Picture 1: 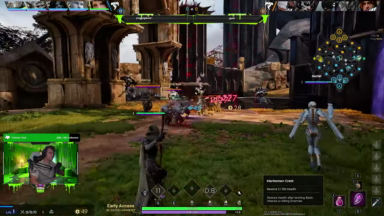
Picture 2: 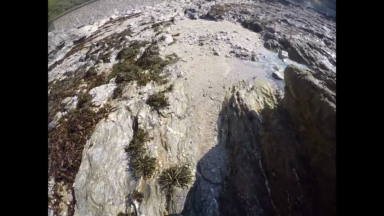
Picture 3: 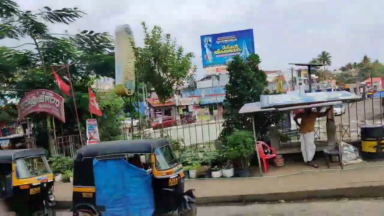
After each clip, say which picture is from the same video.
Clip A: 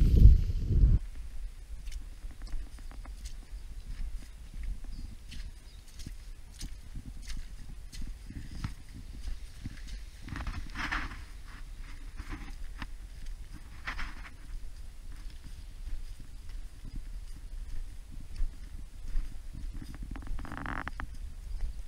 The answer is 2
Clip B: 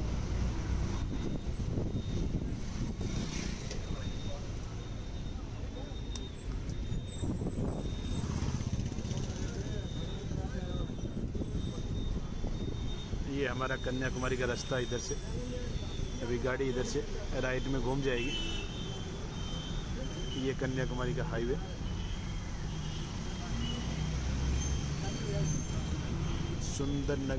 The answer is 3